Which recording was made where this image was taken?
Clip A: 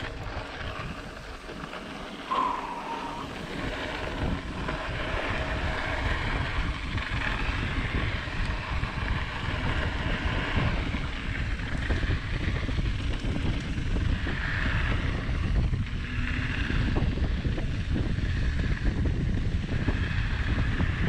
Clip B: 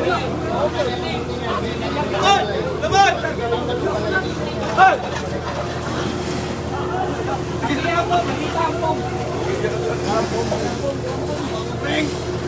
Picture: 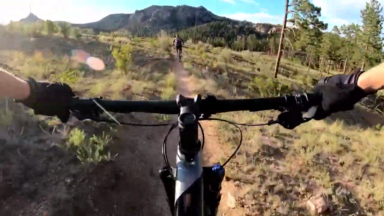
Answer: A